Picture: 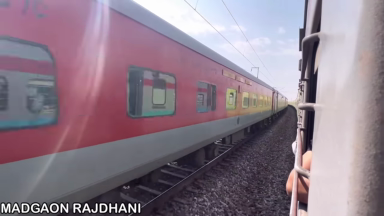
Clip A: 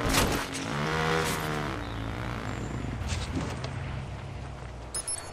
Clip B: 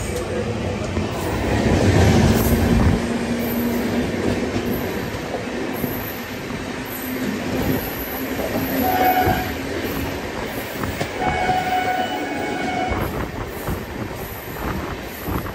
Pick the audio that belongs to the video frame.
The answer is B